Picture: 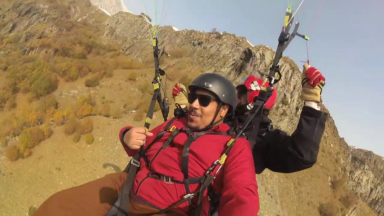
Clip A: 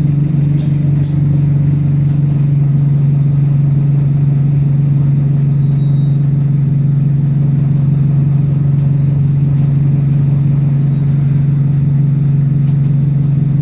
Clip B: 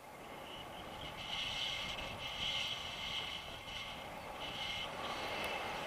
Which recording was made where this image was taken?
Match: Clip B